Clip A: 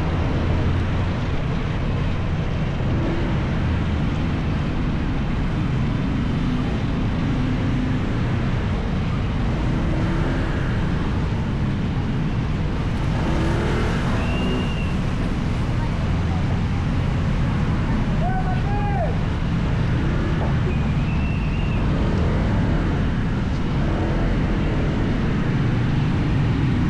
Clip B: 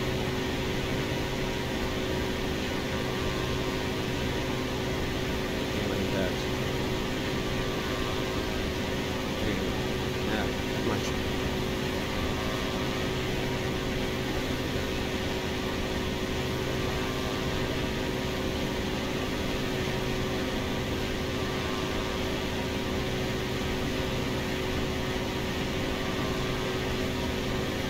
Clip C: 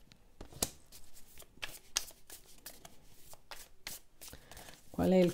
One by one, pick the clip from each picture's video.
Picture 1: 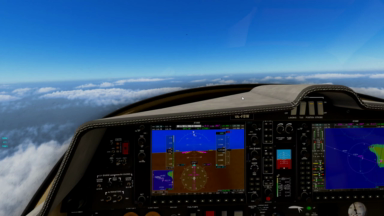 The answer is B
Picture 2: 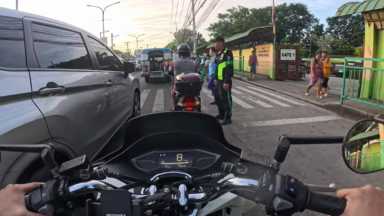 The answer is A